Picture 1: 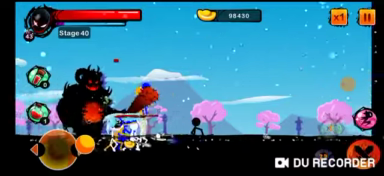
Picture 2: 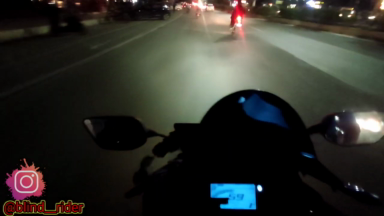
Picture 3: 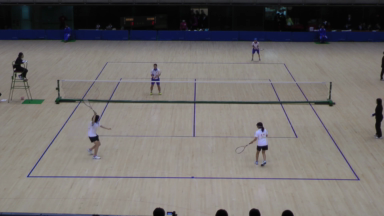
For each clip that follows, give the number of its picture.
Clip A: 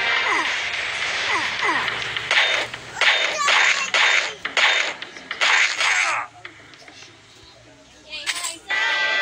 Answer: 1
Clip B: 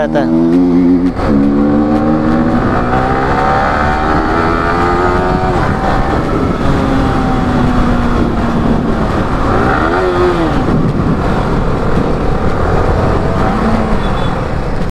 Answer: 2